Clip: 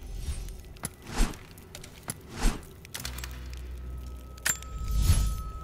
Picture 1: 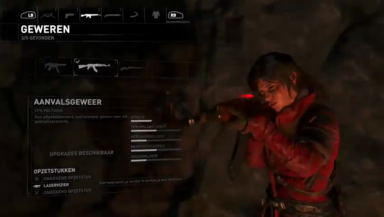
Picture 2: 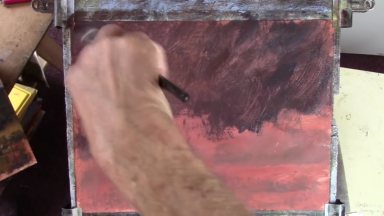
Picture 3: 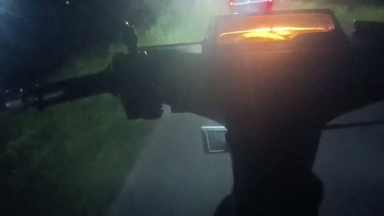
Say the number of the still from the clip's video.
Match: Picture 1